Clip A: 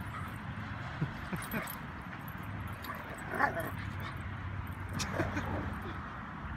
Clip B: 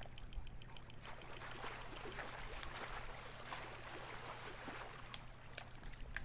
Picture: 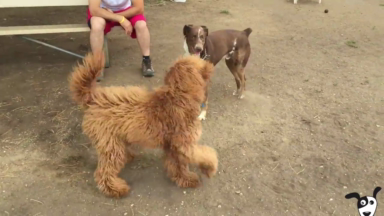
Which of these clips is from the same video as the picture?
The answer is A